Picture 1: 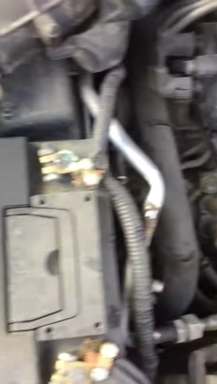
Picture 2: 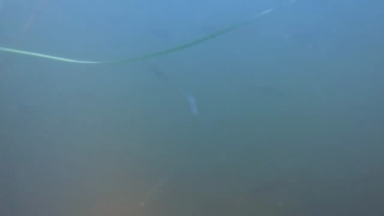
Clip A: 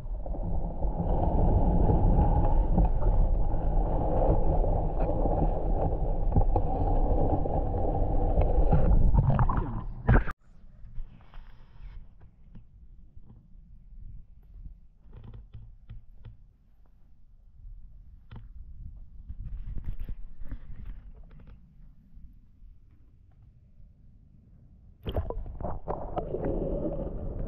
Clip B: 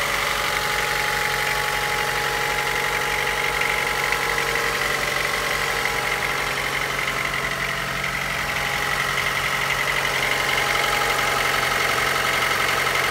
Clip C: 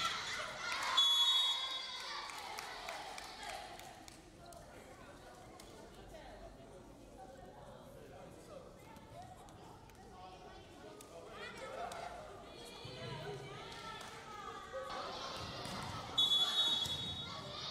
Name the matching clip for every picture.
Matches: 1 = B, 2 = A